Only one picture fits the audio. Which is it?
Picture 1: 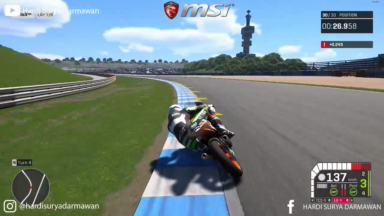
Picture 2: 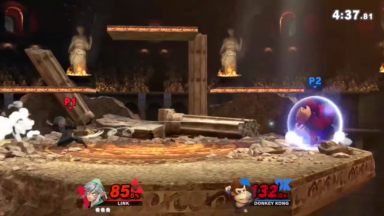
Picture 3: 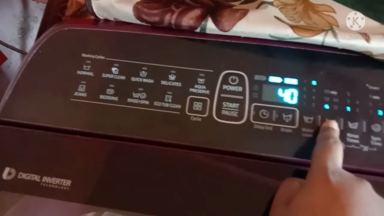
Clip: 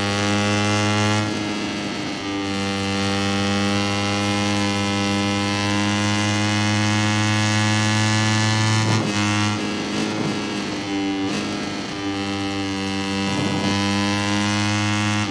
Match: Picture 1